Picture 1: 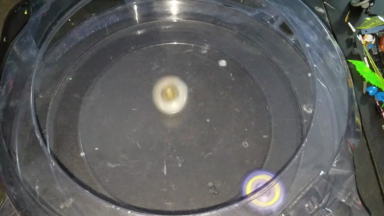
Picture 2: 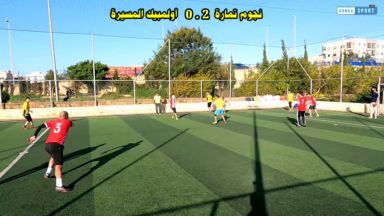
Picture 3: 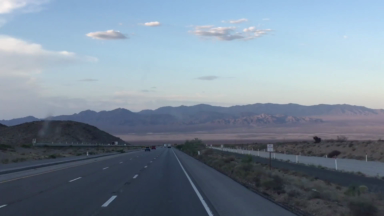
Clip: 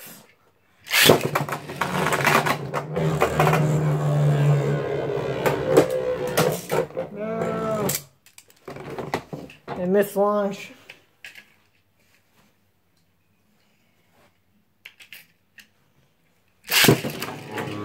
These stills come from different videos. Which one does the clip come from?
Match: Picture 1